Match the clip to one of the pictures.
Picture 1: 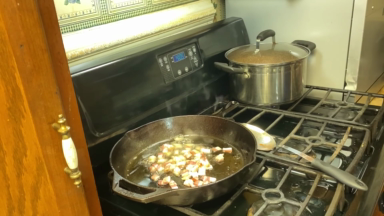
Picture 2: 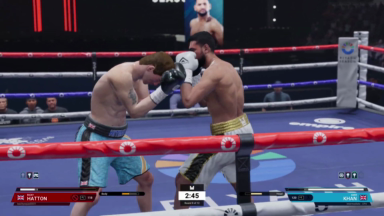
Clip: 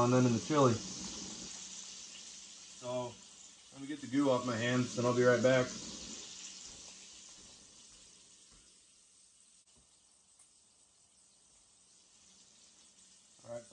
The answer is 1